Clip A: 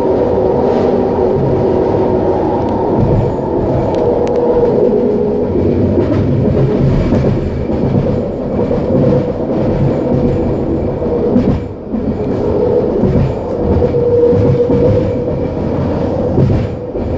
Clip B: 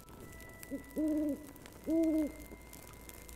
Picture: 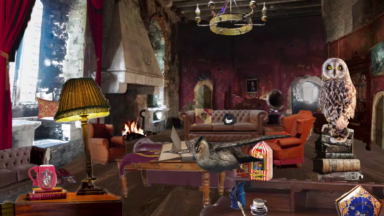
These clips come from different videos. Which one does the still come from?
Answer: B